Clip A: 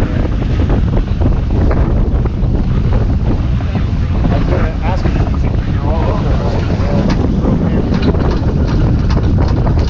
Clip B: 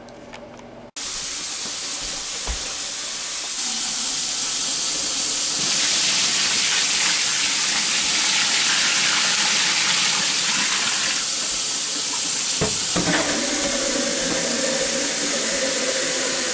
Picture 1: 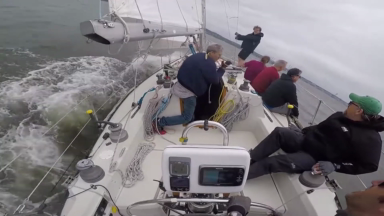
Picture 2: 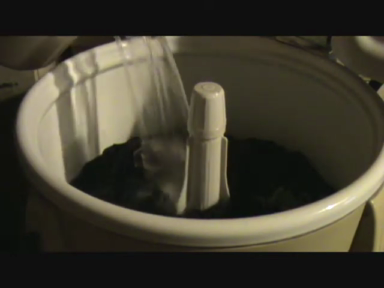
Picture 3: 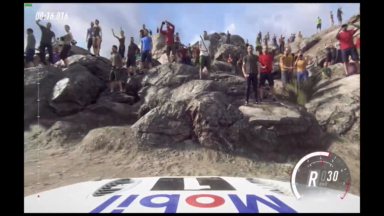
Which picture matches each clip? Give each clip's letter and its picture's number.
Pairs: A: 1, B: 2